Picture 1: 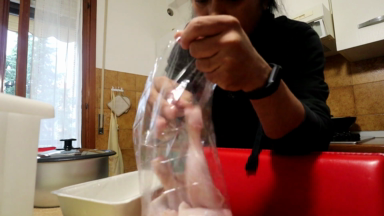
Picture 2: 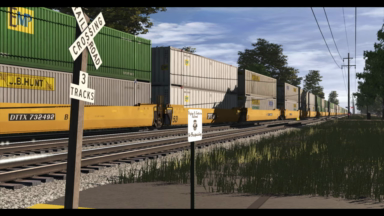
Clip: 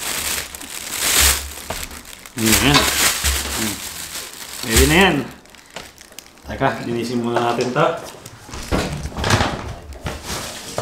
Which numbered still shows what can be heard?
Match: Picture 1